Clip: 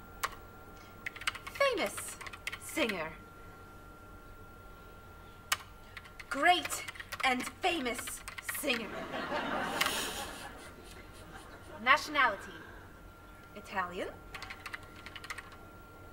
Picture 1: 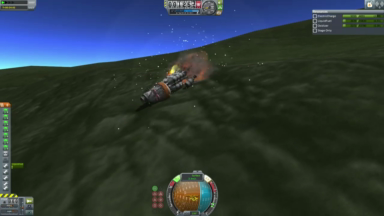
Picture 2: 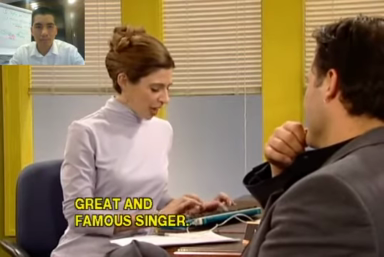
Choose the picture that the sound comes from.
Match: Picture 2